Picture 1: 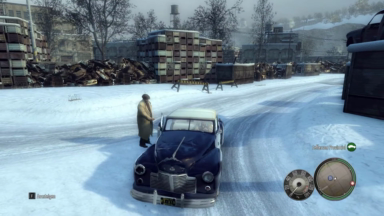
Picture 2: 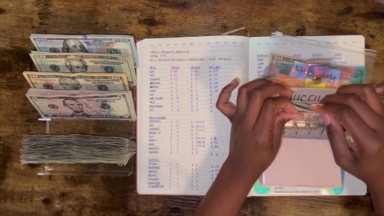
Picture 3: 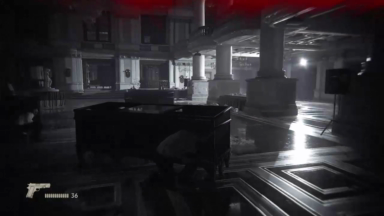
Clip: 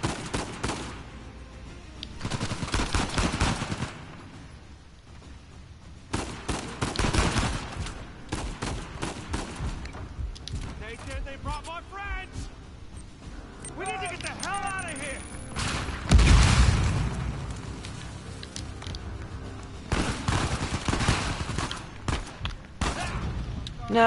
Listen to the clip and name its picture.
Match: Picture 3